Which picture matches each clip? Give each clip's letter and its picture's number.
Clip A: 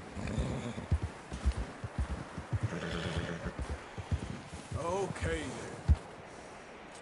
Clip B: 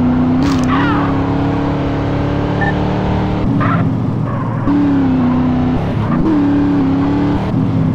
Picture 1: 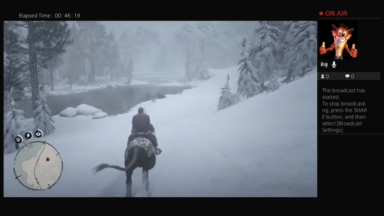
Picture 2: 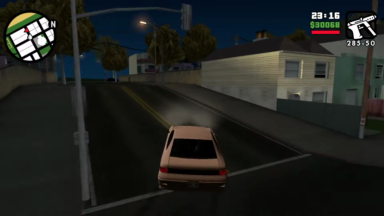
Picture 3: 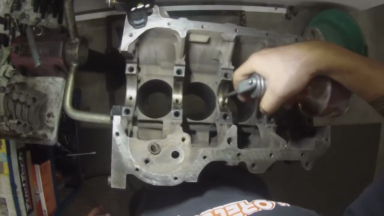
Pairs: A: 1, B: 2